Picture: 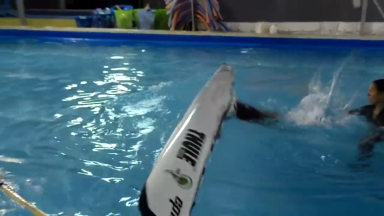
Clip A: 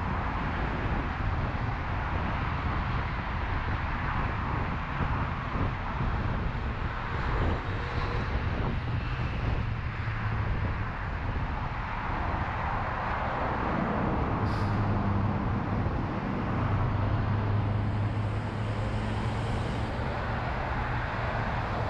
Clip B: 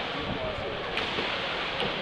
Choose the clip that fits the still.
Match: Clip B